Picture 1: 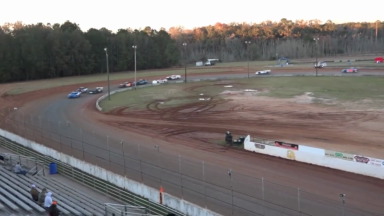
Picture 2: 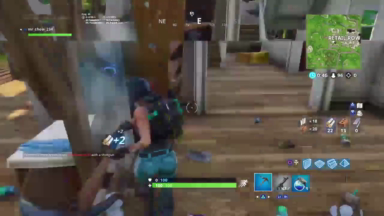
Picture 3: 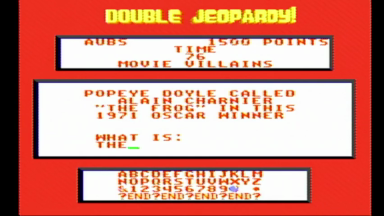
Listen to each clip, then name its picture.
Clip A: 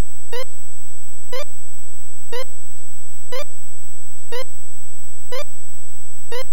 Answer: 3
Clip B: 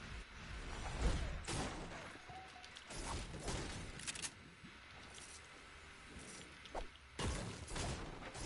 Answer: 2